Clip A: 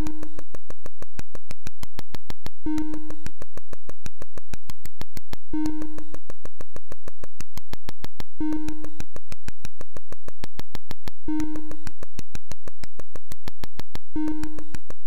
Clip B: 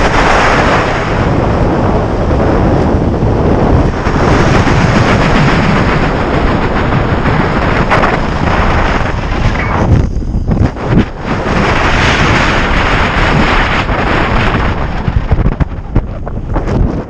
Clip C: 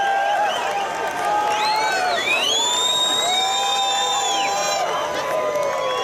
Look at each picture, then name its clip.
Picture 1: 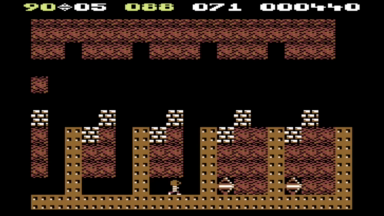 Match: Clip A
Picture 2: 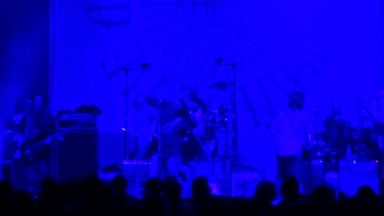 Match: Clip C